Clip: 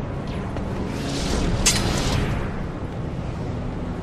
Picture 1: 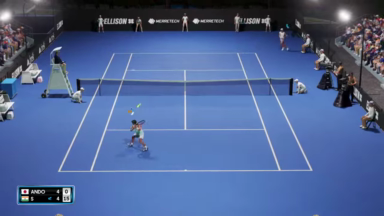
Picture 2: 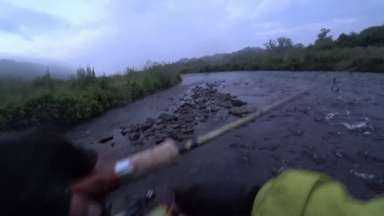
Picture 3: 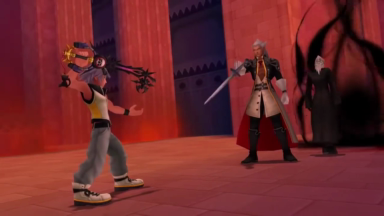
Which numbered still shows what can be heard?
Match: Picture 3